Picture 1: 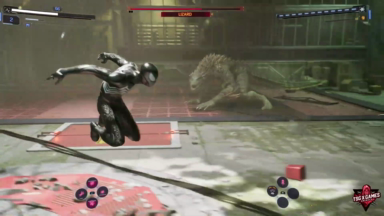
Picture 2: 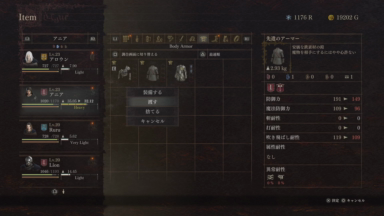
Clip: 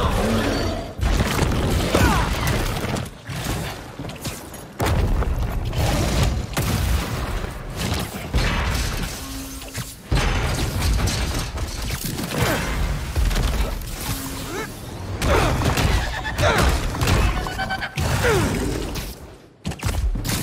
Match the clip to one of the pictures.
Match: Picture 1